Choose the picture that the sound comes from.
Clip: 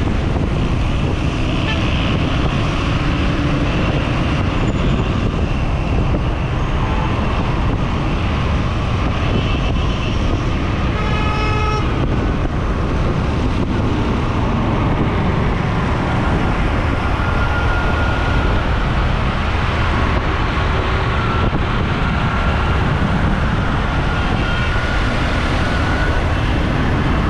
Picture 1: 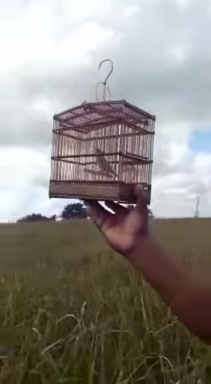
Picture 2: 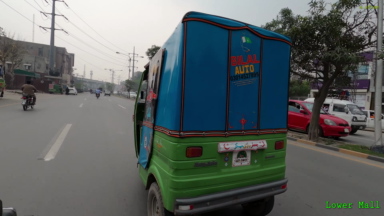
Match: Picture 2